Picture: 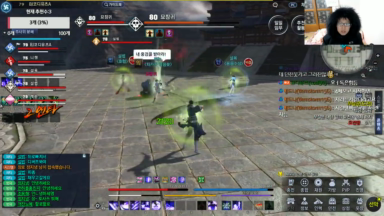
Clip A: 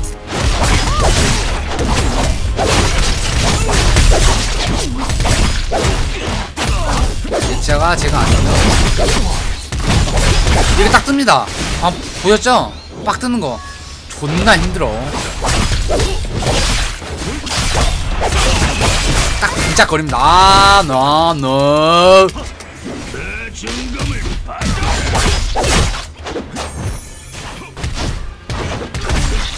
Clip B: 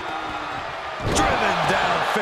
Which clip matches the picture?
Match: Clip A